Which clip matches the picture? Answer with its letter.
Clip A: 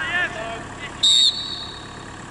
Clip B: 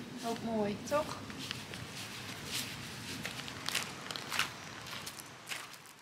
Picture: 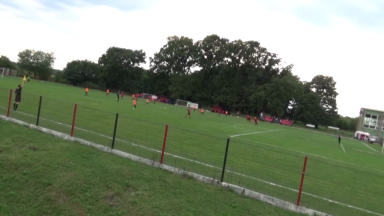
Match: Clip A